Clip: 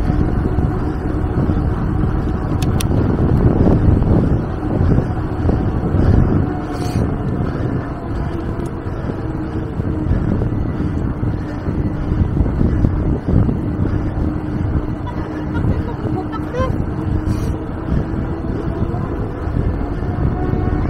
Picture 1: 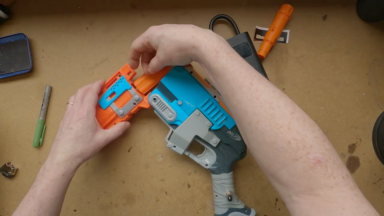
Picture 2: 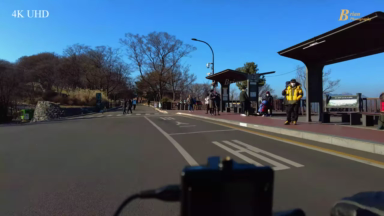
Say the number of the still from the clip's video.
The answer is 2